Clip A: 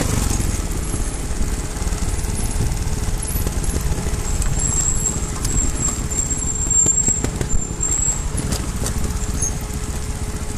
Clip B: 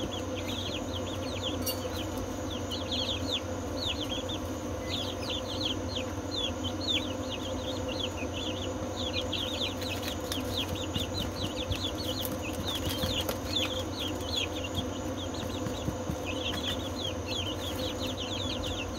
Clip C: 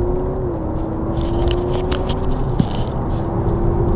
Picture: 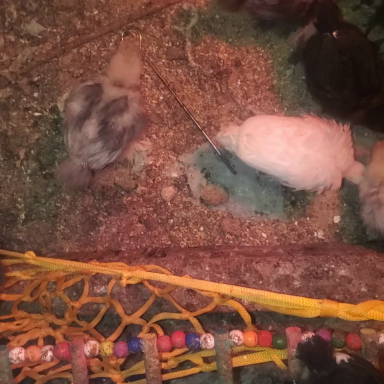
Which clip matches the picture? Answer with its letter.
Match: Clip B